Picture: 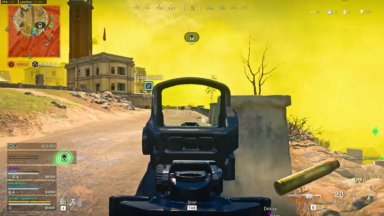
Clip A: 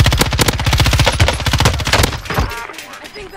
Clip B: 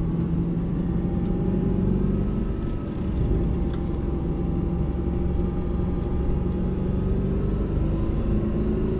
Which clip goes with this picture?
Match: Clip A